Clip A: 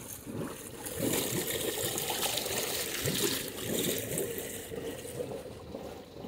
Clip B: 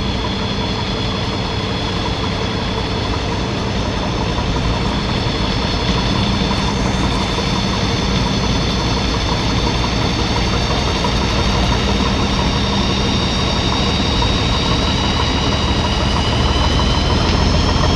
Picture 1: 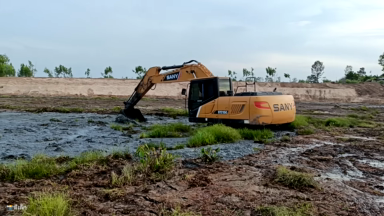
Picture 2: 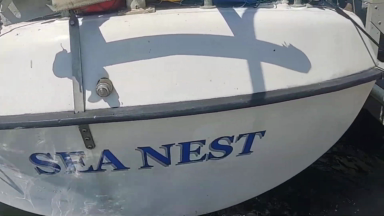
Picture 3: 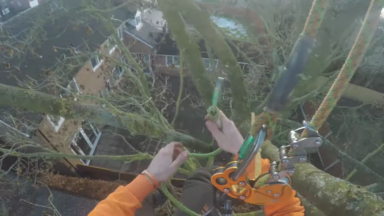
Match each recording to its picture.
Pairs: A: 2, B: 1